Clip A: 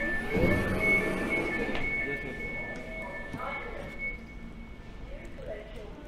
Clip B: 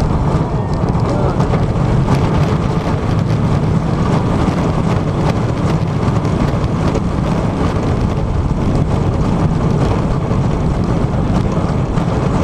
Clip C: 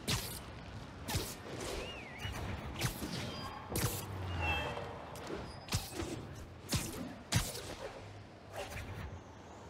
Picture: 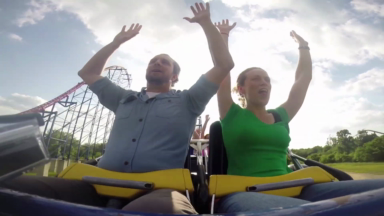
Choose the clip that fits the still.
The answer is B